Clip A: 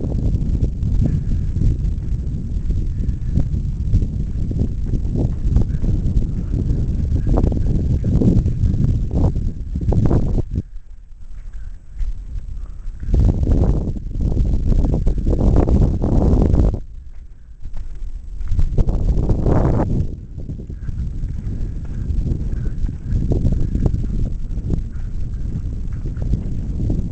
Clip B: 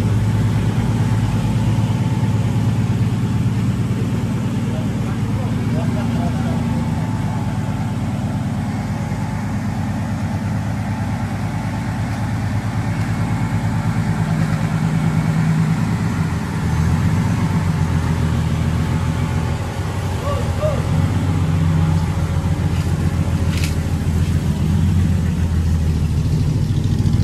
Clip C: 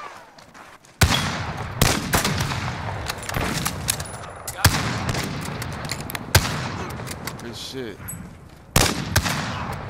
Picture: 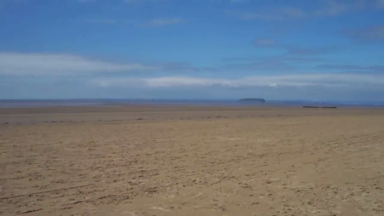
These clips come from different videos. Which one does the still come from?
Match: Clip A